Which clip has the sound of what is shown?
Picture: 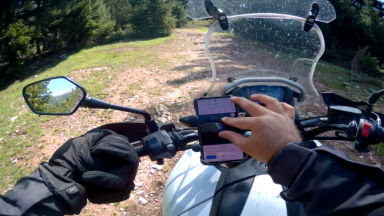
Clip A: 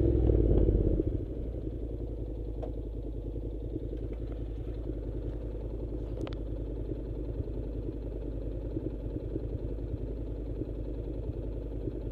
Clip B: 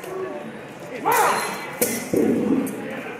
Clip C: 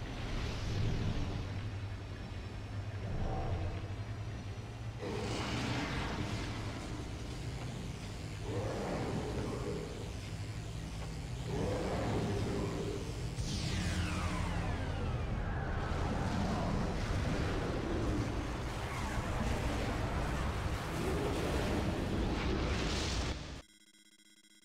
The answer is A